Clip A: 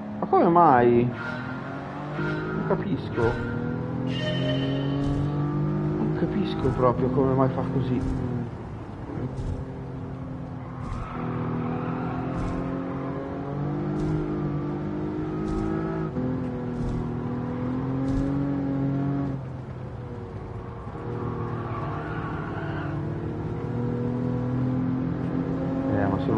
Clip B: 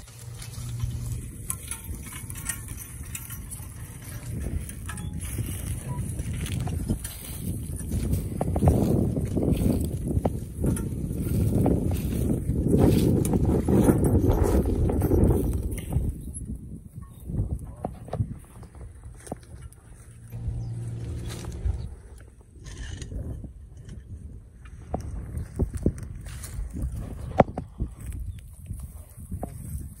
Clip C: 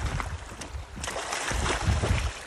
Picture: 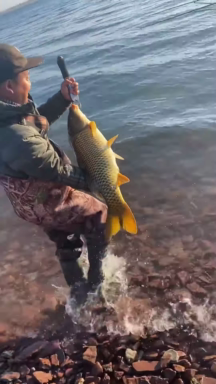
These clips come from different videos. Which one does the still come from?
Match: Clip C